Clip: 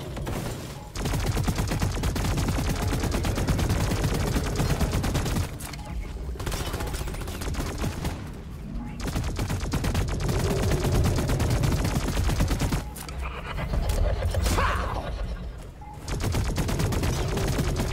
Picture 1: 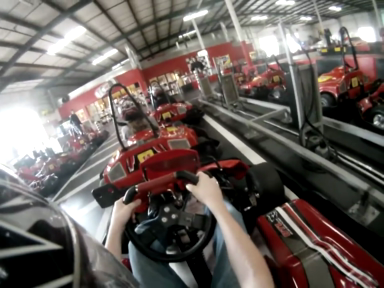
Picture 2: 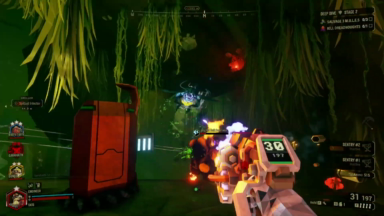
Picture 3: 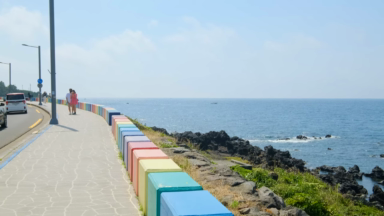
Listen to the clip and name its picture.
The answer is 2